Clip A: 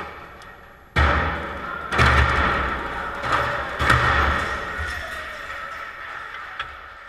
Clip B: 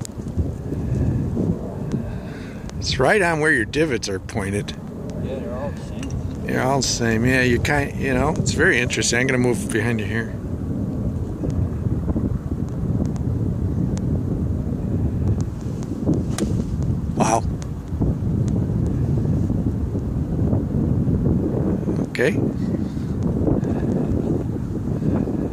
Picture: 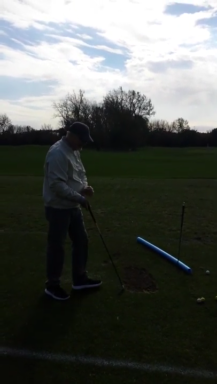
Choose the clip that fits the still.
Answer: B